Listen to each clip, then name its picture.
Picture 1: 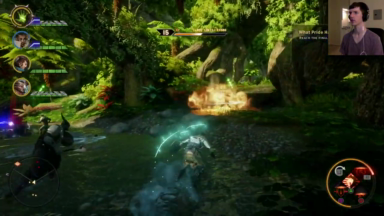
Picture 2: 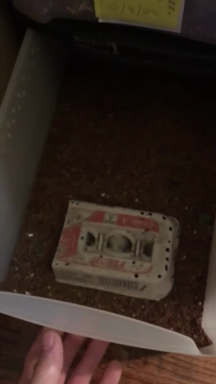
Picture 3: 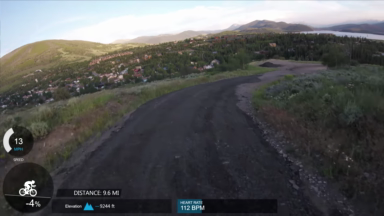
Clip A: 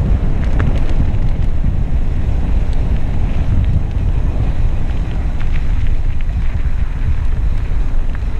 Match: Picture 3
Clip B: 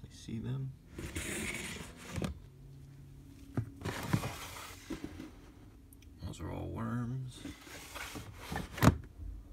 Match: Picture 2